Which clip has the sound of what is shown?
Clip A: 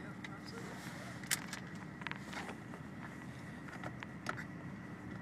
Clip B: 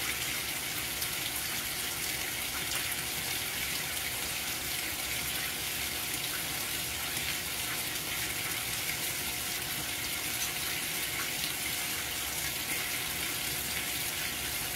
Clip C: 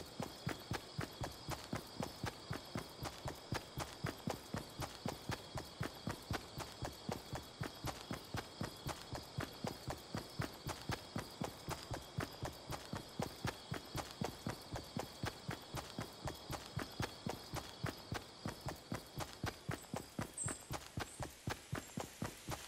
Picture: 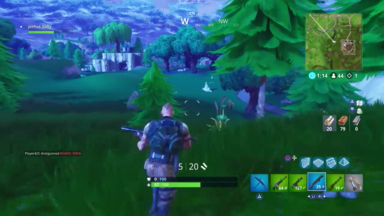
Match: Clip C